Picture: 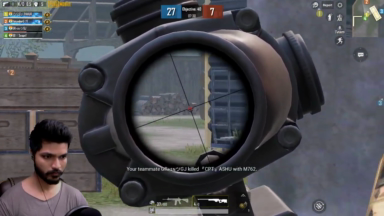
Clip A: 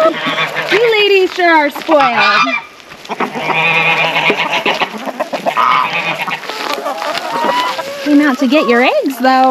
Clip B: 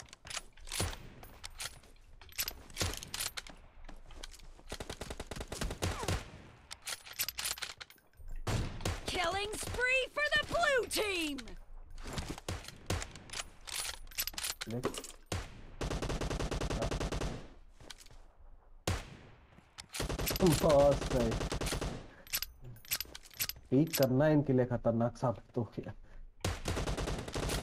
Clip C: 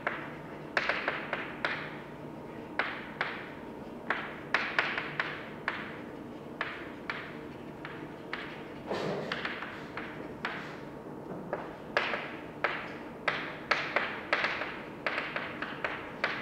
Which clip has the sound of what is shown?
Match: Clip B